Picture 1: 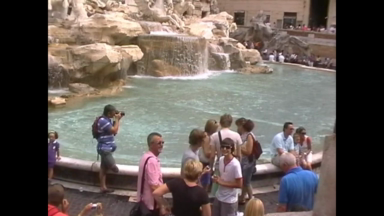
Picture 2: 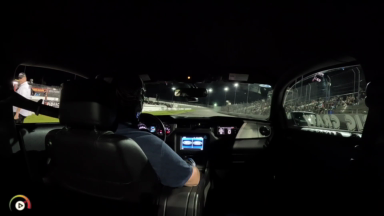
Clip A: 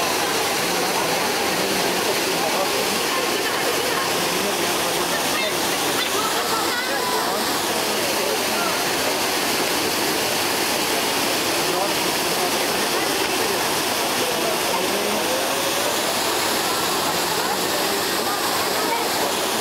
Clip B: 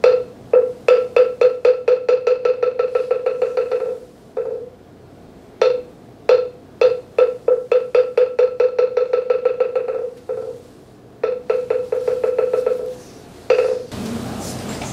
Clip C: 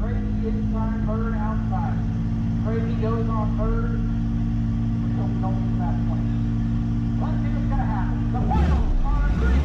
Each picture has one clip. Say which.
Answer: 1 A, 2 C